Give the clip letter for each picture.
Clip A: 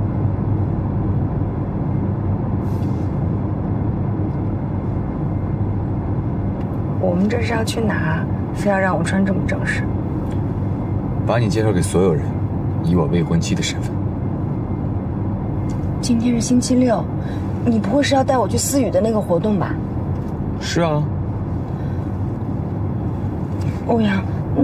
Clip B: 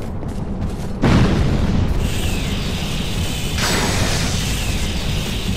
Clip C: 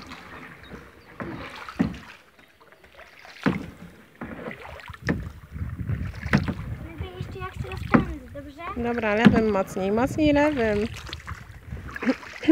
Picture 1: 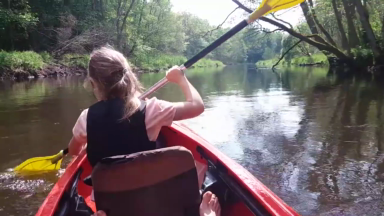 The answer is C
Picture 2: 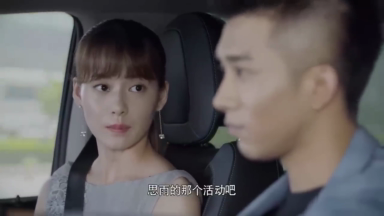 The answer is A